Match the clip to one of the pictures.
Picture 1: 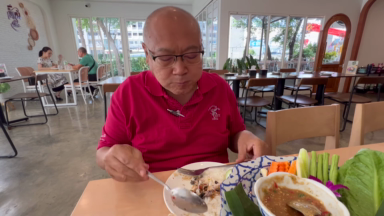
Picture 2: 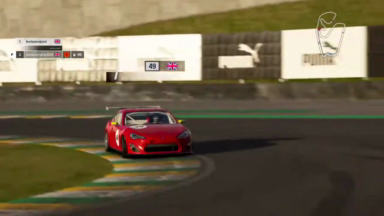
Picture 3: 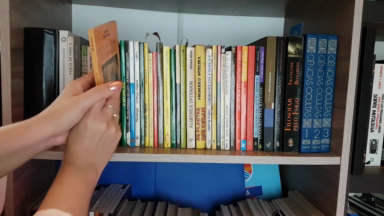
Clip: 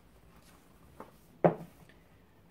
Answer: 3